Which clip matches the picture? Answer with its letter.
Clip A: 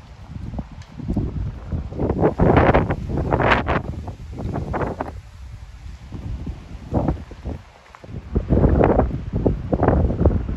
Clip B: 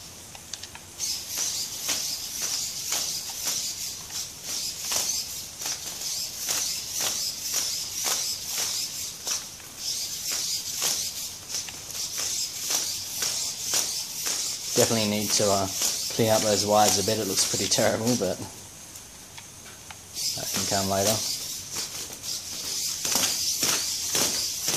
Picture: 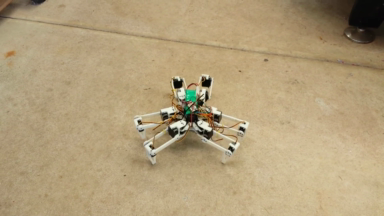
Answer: B